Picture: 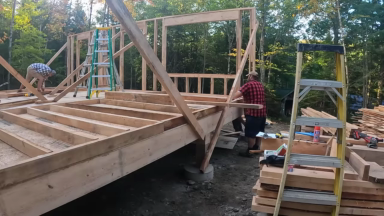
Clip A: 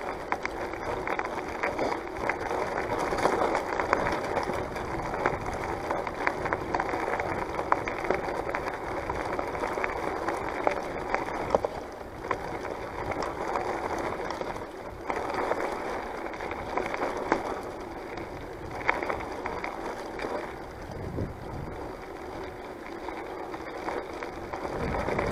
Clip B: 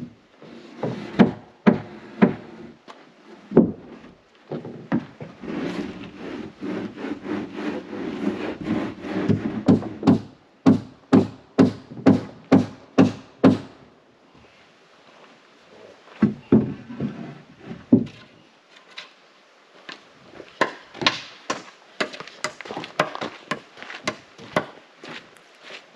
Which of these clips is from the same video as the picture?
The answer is B